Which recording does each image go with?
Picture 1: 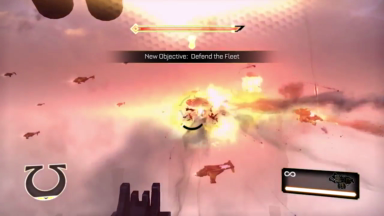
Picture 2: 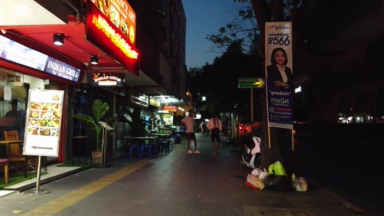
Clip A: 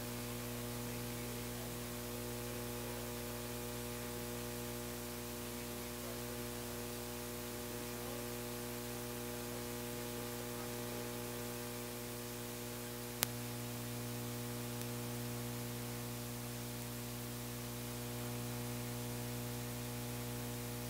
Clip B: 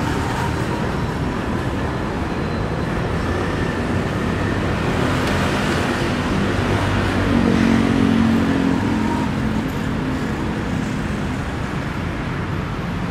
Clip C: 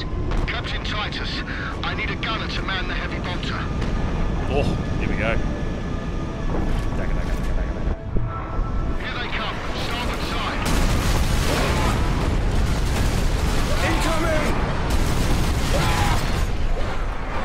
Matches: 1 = C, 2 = B